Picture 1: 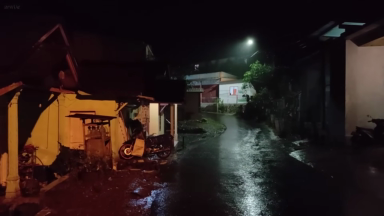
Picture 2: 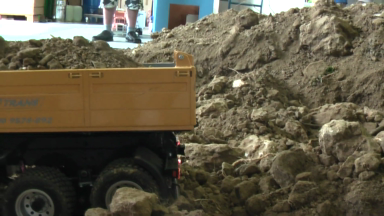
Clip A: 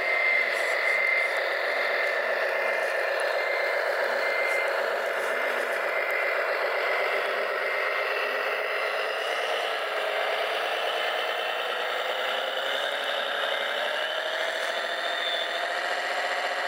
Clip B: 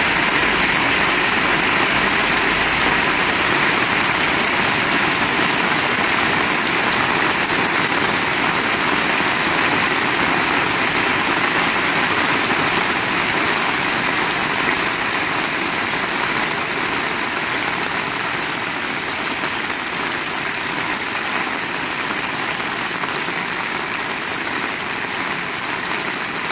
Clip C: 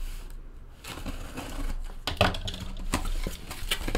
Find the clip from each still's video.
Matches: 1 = B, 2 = A